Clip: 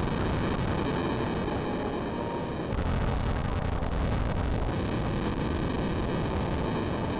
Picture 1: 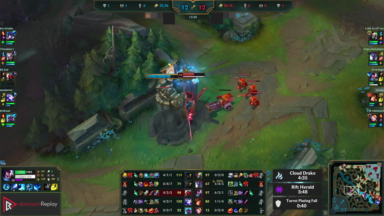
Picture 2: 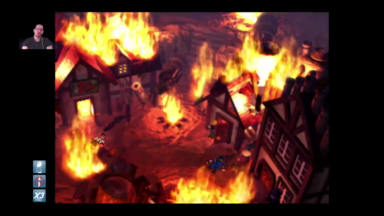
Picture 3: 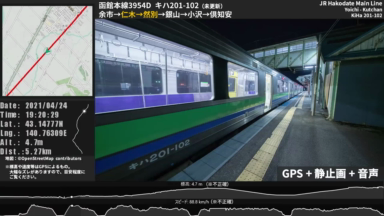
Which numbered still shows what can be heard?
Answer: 2